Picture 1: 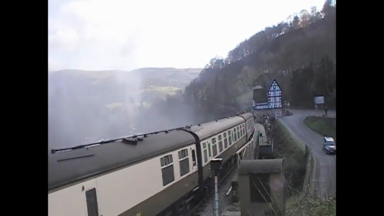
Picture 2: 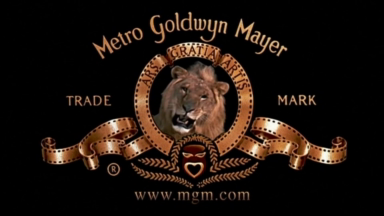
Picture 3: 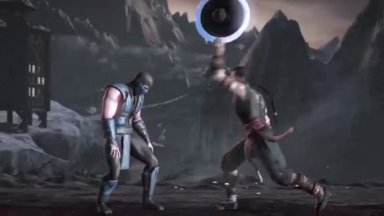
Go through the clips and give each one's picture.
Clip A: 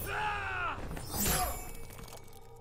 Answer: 3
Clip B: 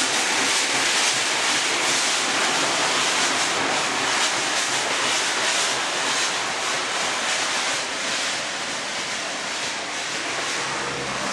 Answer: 1